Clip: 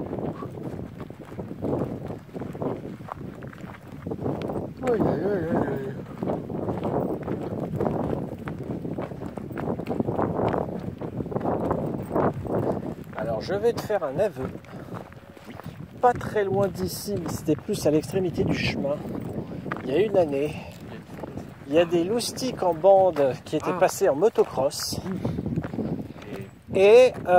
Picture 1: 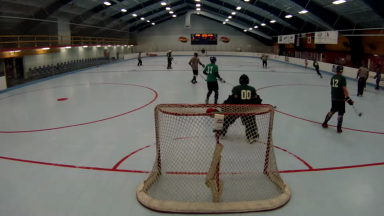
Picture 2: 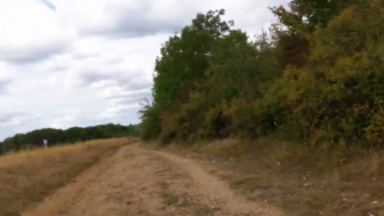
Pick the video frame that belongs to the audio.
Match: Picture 2